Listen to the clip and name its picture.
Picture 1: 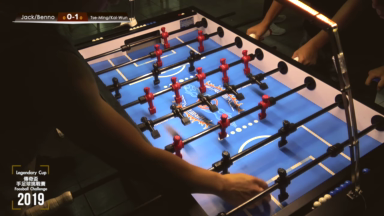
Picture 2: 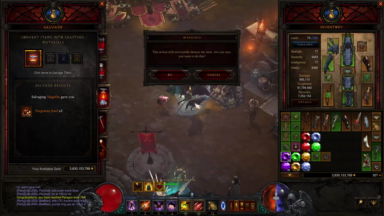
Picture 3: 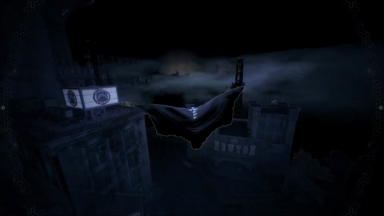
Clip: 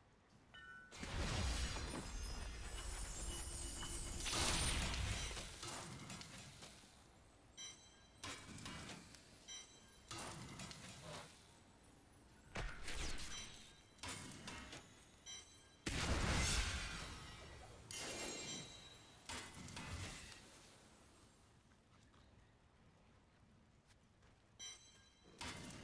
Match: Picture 2